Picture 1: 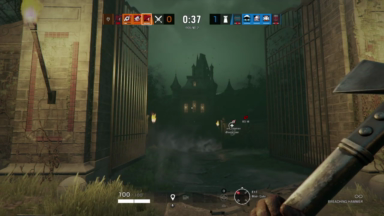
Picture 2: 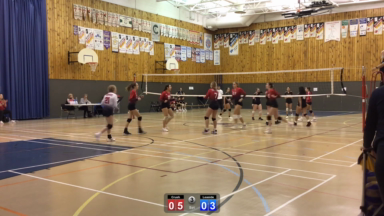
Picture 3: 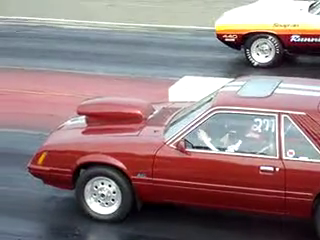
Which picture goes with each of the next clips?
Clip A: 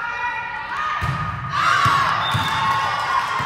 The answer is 2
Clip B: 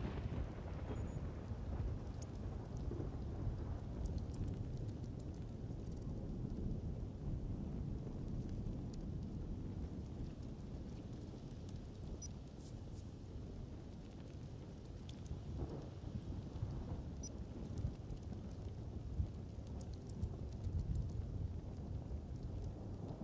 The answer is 1